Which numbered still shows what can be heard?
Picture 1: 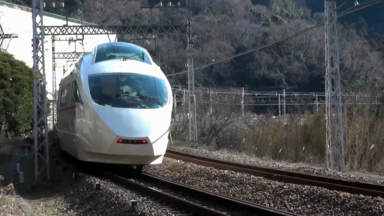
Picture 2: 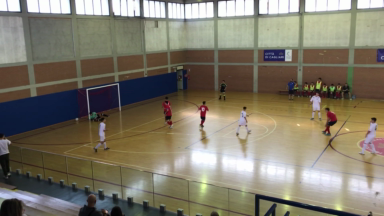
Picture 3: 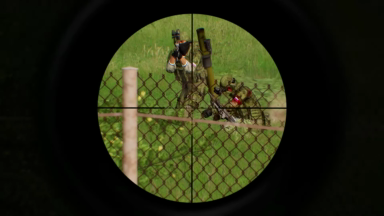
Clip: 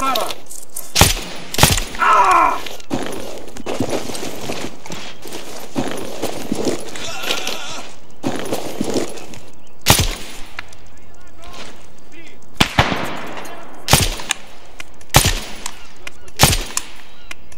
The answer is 3